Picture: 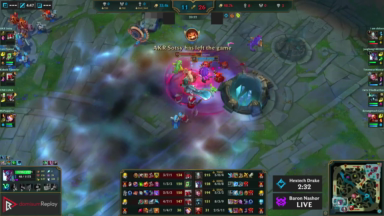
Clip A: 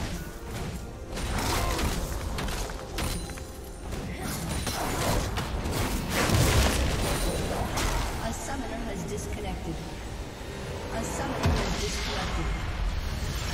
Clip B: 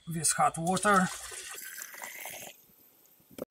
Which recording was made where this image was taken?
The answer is A